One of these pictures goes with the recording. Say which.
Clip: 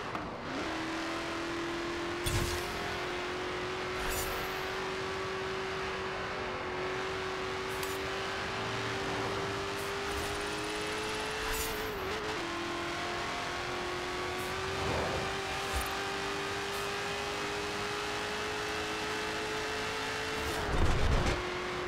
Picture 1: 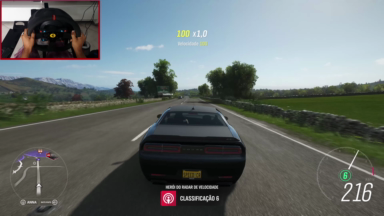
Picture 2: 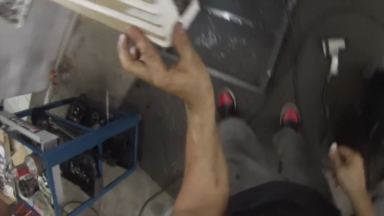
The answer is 1